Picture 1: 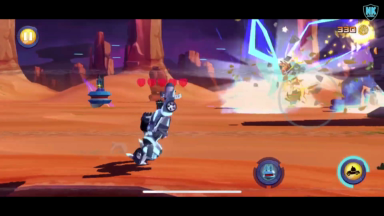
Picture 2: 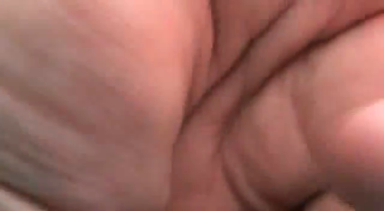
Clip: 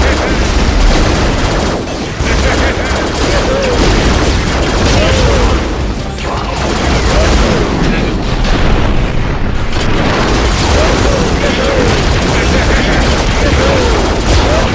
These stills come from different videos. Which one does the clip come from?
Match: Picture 1